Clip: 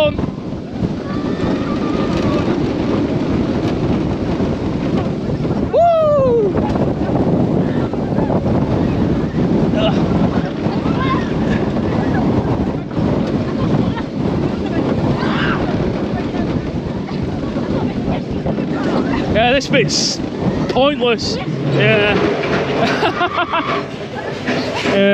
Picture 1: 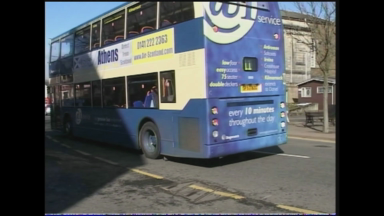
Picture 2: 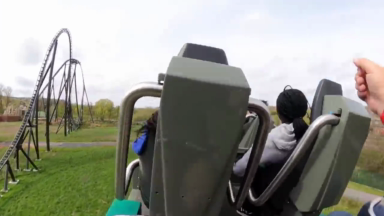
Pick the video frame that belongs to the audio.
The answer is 2